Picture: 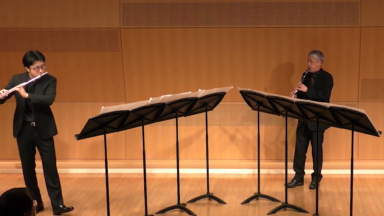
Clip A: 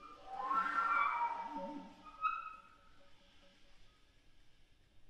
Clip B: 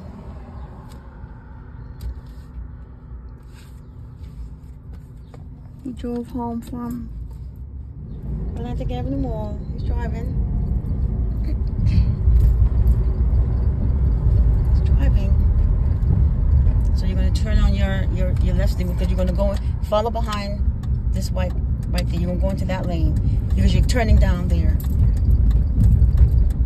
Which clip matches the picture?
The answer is A